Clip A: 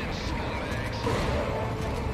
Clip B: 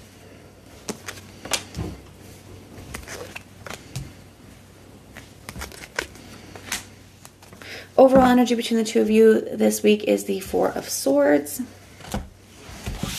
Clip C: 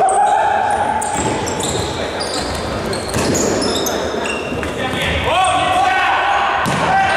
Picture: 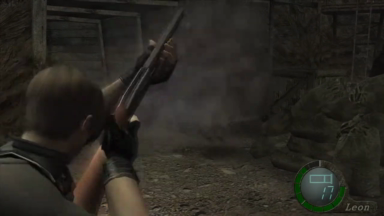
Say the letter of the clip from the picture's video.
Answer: A